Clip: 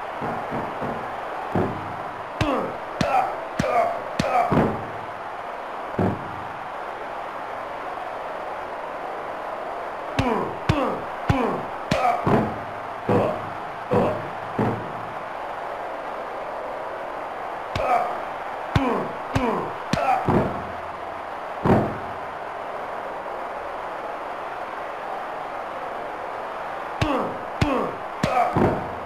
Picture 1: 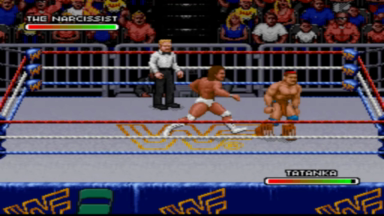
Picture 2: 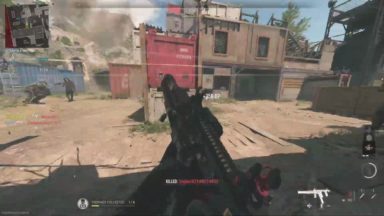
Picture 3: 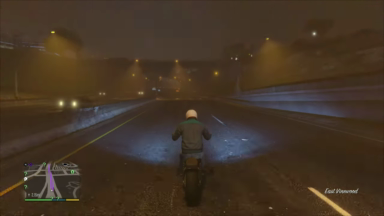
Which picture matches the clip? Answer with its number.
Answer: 1